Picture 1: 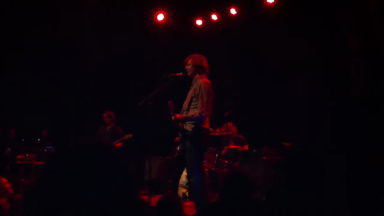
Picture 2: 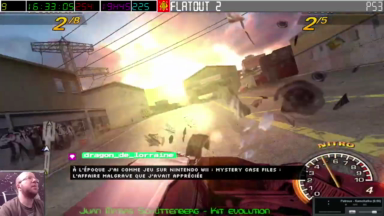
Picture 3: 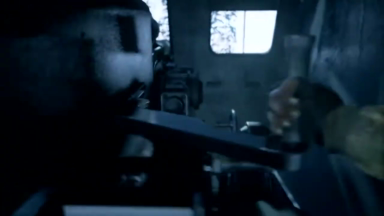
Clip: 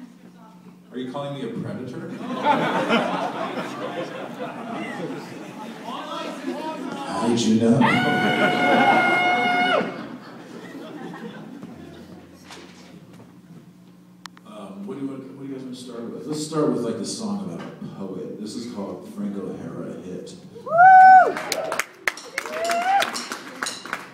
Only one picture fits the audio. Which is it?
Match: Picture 1